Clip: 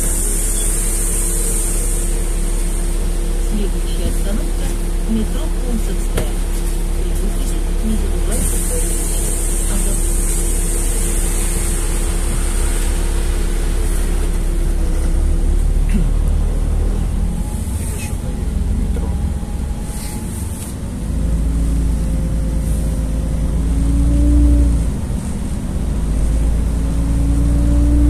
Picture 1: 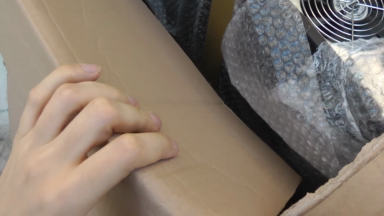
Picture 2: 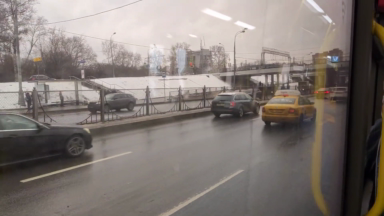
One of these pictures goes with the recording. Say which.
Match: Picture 2